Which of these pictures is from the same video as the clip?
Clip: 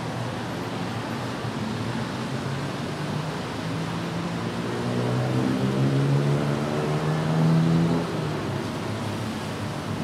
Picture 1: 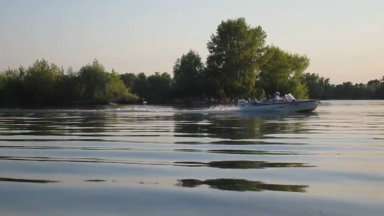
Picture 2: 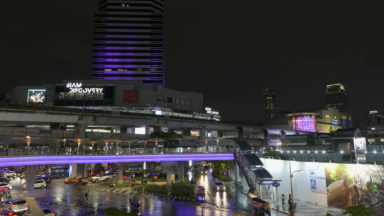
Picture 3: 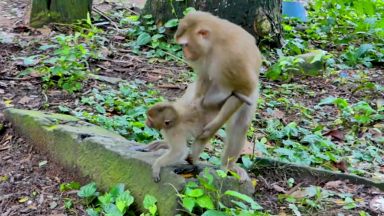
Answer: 2